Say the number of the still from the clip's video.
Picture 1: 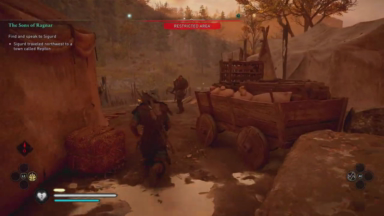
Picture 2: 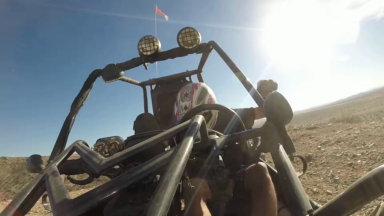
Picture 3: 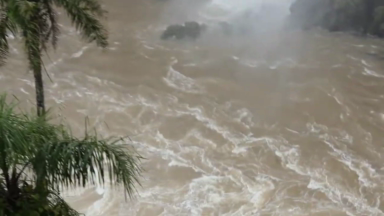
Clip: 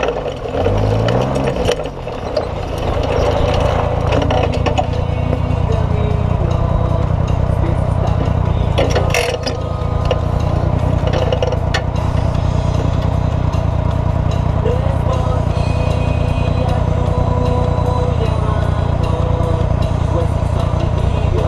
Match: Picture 2